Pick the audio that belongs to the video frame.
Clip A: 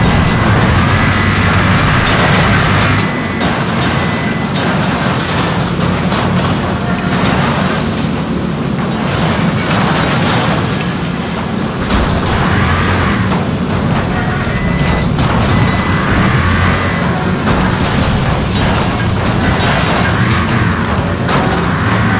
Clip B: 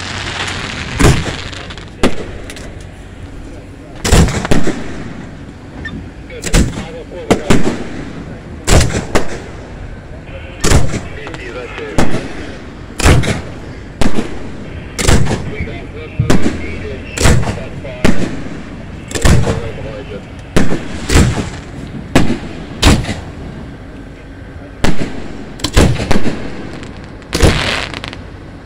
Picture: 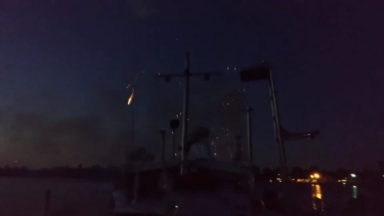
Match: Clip B